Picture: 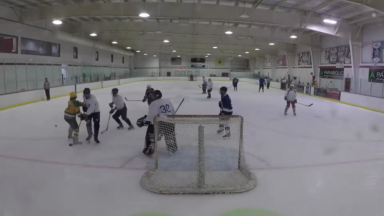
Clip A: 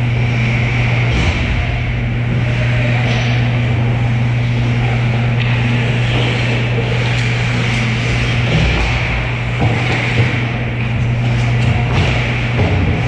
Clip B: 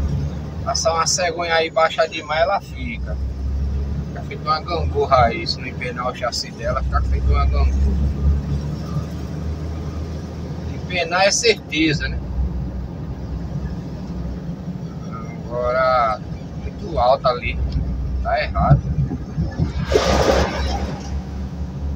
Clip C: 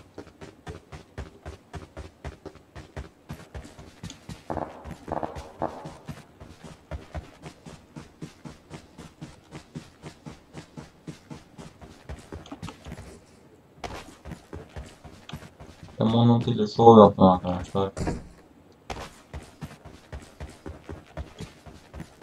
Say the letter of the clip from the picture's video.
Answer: A